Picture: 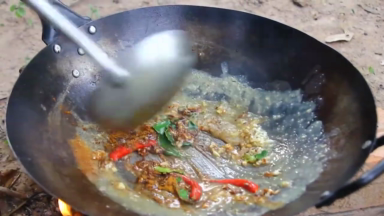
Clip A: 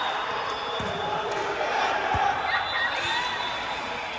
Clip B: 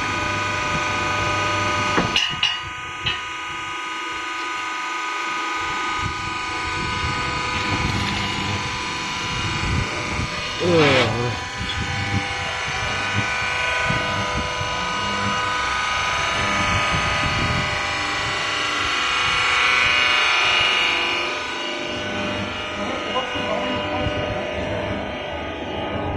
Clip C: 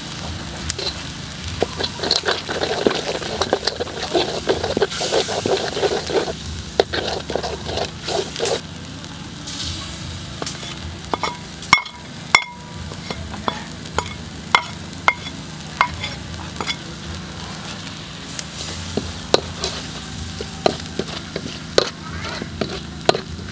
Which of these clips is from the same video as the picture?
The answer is C